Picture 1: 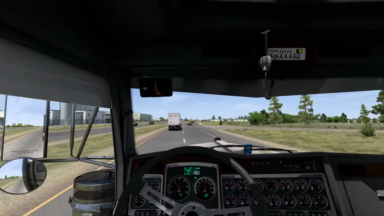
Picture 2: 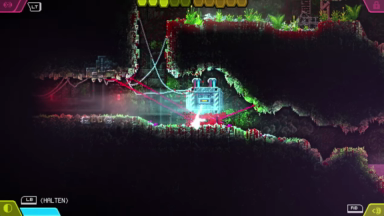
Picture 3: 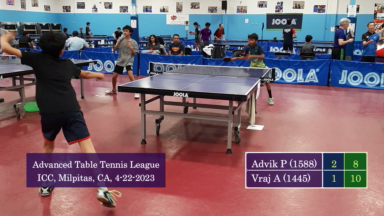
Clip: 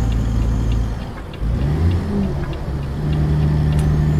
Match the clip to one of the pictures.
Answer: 1